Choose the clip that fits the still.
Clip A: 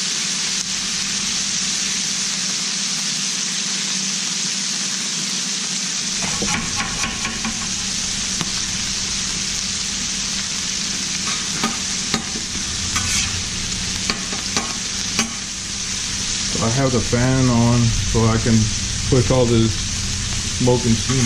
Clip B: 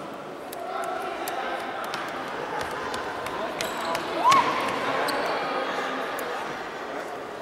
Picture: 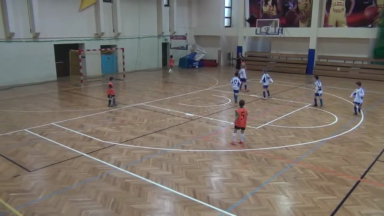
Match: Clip B